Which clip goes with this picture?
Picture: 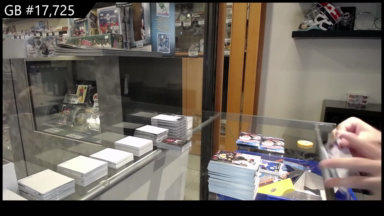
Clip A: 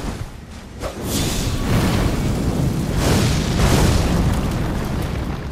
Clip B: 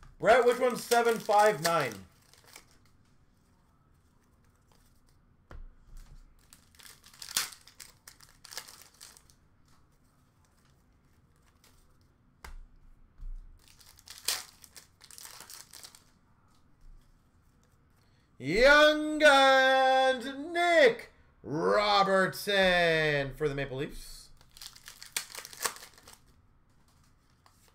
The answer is B